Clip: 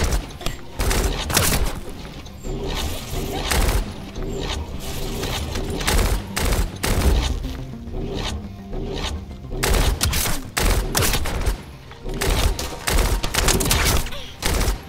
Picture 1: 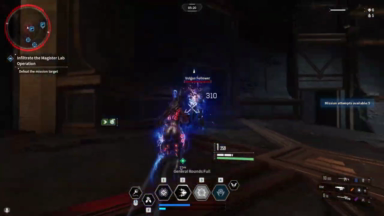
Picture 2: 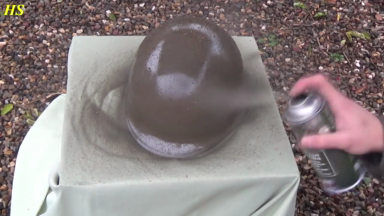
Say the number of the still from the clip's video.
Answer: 1